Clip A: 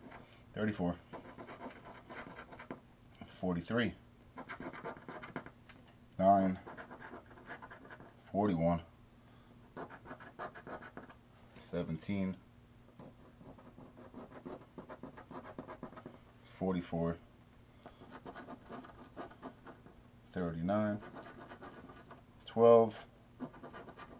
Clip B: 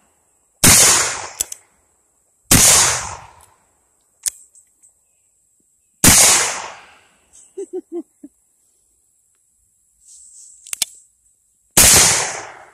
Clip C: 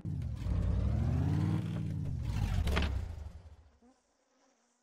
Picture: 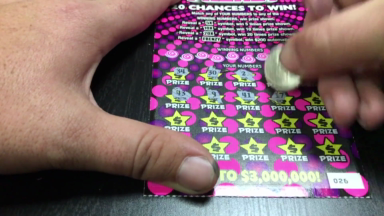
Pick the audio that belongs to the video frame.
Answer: A